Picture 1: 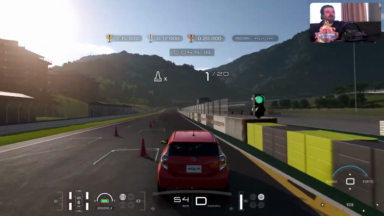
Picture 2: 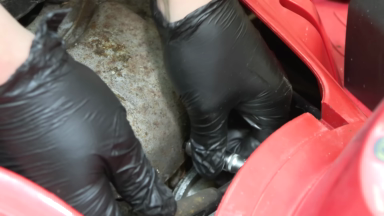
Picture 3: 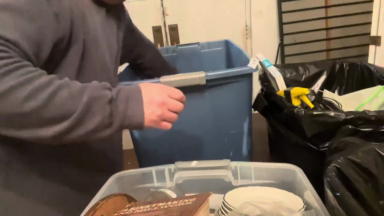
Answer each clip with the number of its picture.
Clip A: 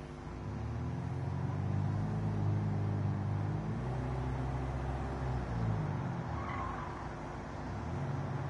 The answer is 1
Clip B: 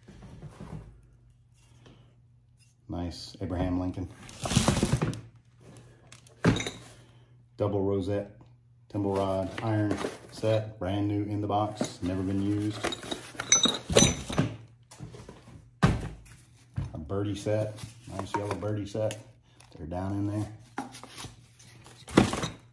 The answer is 3